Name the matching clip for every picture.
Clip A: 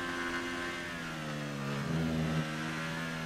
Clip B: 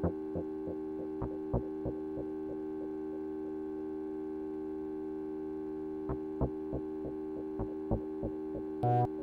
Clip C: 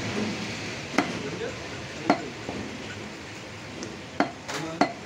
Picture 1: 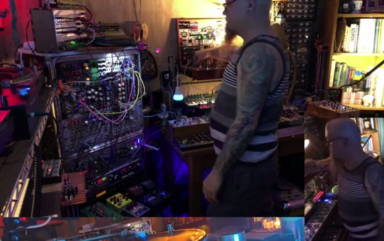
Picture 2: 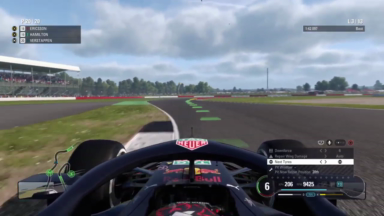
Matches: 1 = B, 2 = A